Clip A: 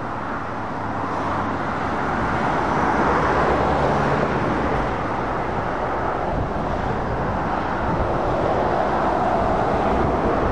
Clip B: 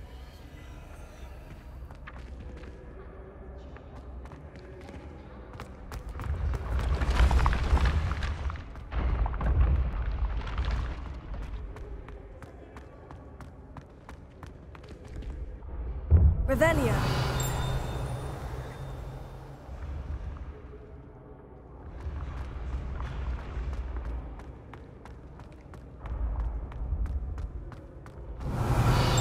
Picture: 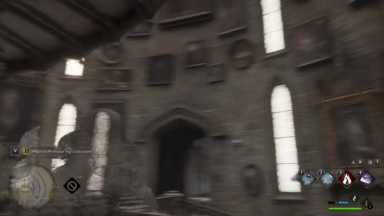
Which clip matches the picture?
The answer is B